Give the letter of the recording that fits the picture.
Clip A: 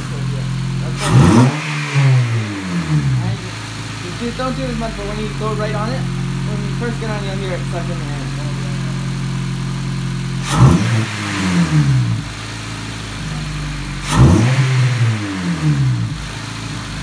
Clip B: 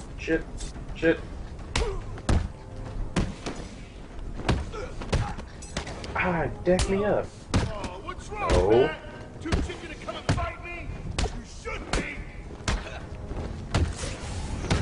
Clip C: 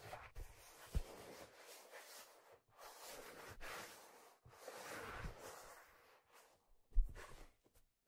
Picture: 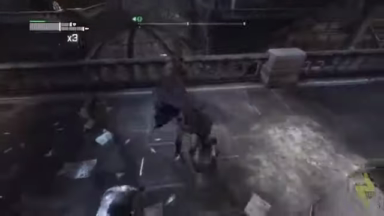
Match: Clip B